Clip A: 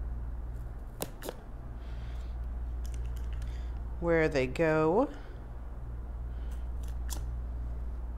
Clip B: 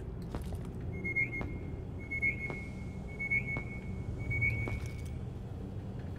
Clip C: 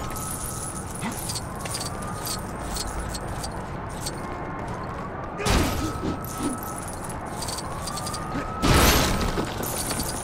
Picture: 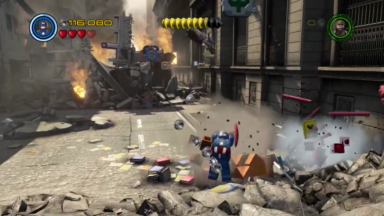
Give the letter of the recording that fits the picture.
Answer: C